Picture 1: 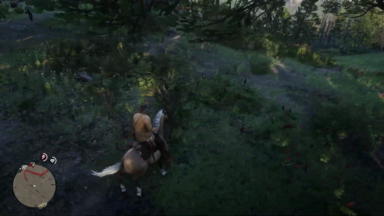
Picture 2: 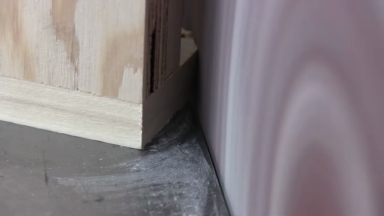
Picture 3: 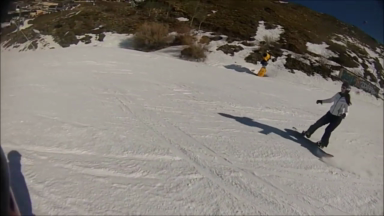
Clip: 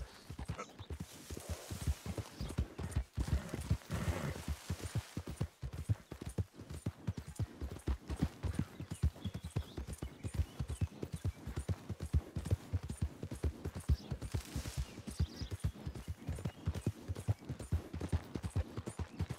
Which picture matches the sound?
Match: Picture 1